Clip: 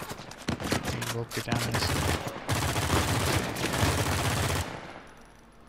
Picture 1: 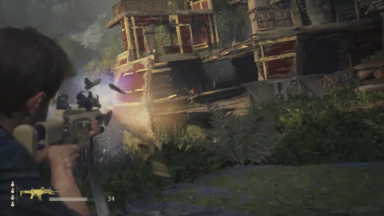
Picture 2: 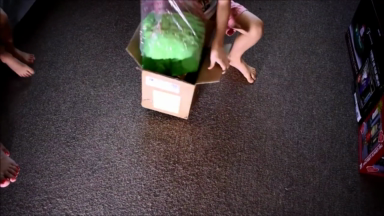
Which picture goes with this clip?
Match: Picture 1